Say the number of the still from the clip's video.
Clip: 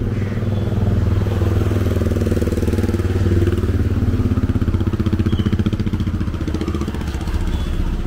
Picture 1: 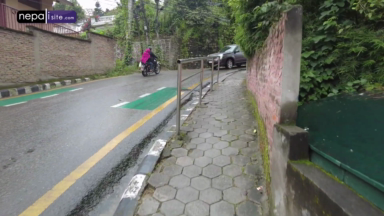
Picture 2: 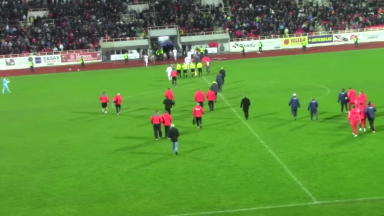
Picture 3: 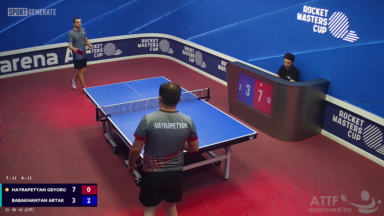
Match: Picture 1